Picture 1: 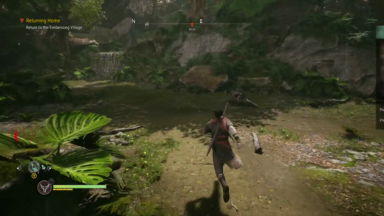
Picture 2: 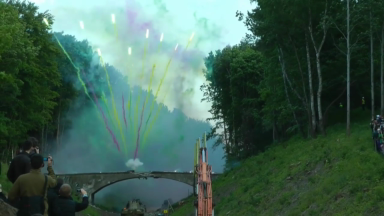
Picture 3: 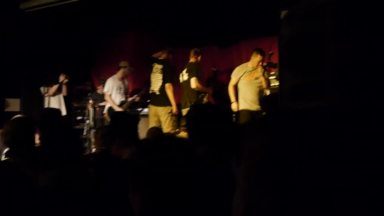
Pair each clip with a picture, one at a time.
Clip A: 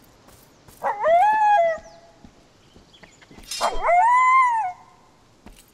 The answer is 1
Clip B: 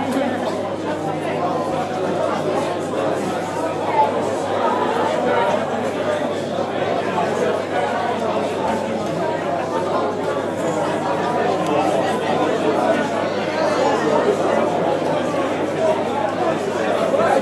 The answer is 3